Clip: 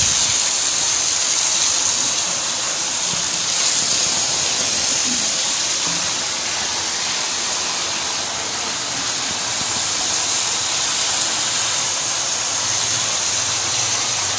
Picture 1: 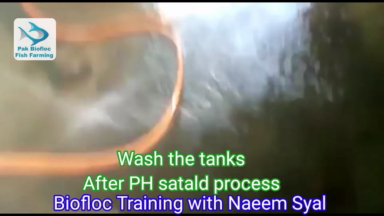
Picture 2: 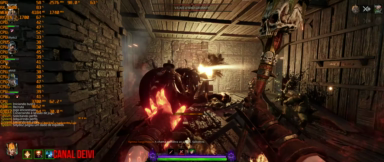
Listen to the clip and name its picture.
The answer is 1